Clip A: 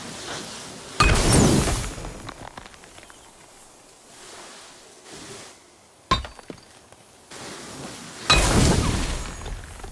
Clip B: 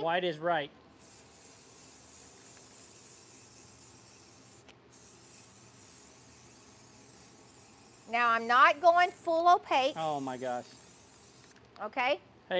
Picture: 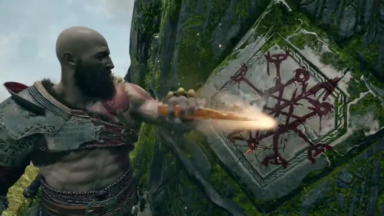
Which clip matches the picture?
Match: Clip A